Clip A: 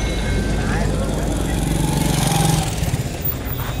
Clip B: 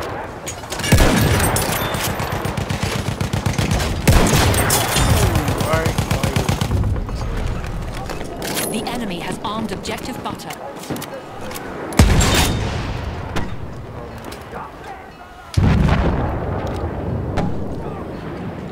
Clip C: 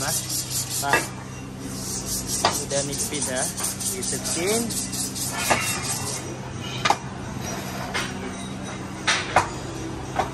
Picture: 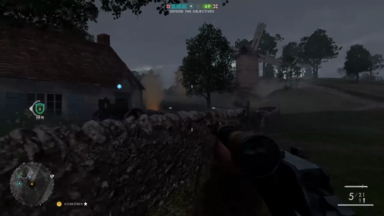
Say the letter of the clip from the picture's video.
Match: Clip B